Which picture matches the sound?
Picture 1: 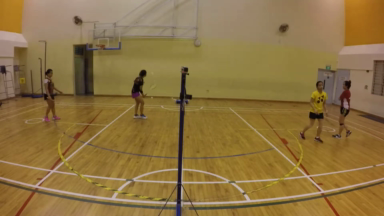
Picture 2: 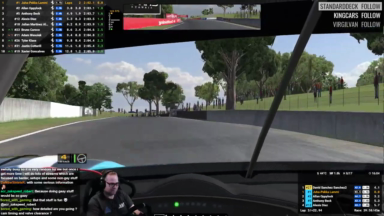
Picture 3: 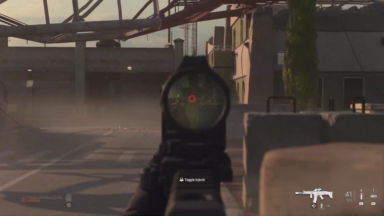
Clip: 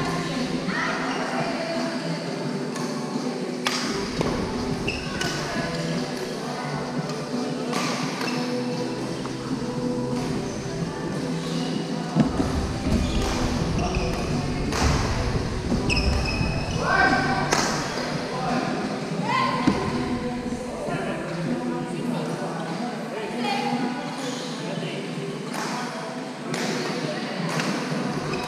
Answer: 1